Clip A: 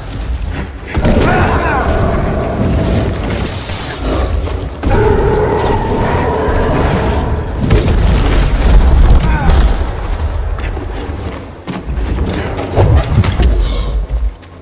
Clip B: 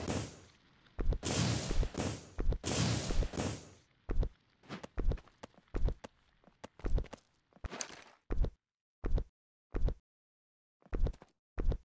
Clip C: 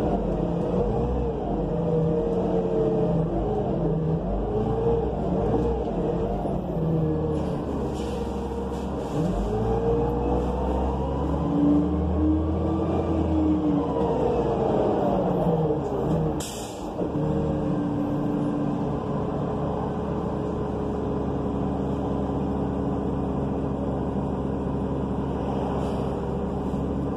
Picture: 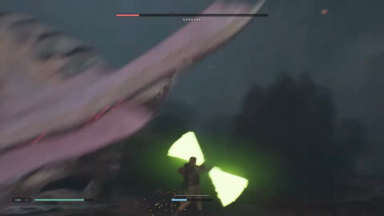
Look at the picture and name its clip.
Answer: A